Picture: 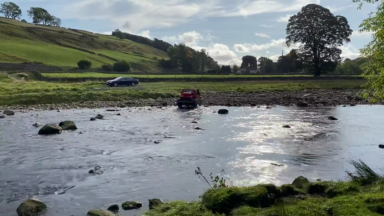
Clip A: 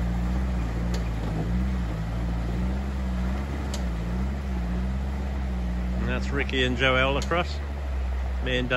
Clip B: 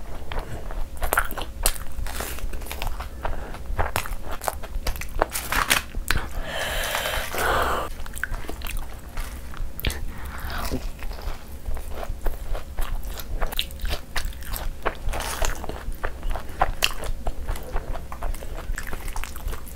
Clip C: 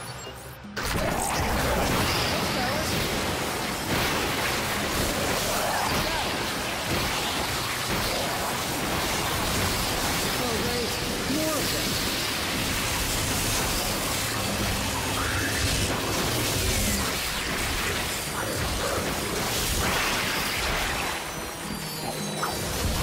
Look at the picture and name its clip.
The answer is A